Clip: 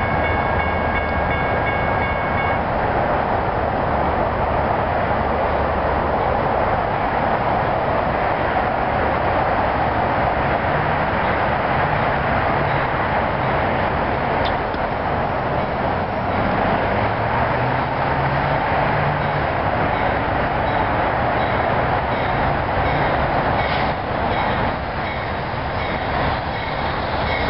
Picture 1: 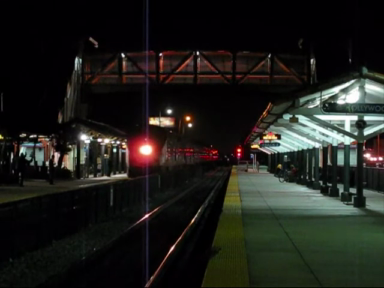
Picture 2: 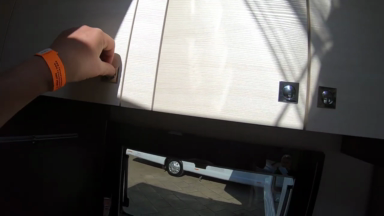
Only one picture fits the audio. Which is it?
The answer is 1